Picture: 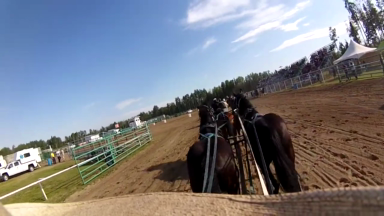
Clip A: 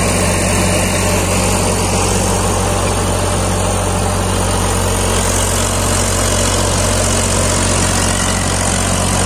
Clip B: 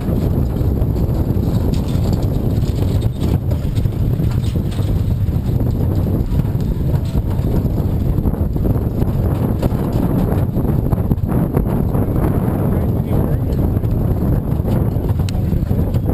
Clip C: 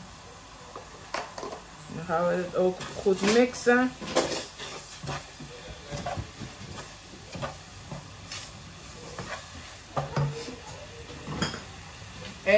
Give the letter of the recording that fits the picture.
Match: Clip B